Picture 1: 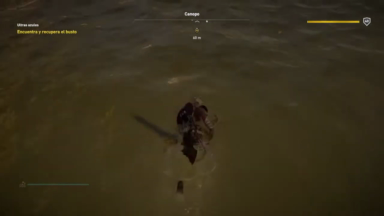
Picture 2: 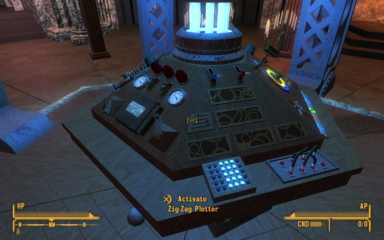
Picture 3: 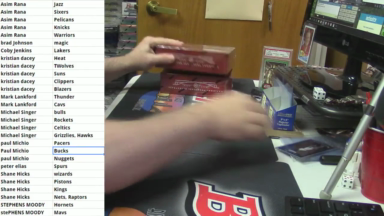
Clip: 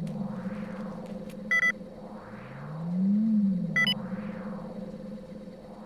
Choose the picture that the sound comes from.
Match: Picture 2